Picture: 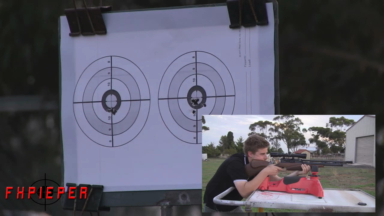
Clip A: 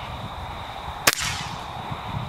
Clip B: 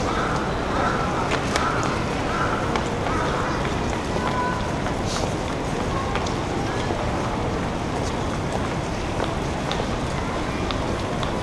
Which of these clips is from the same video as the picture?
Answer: A